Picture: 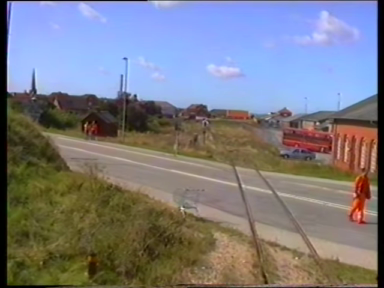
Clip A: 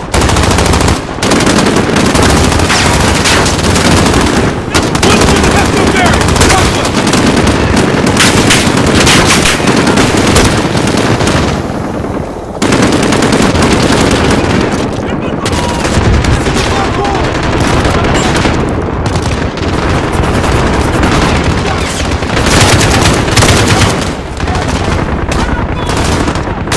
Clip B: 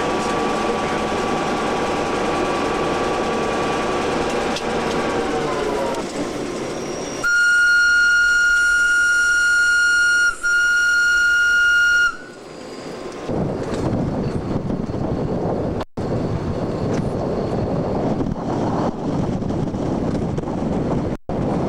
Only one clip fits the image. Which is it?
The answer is B